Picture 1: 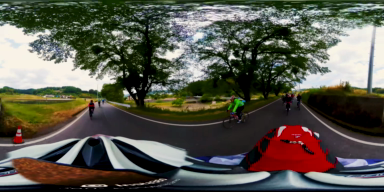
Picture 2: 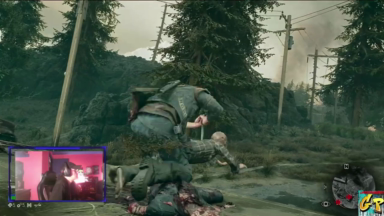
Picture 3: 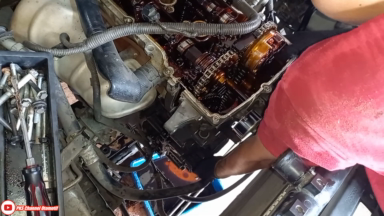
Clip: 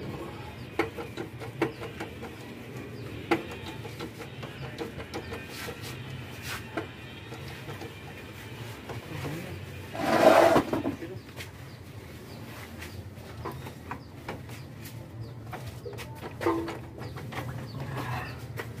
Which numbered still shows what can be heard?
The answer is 3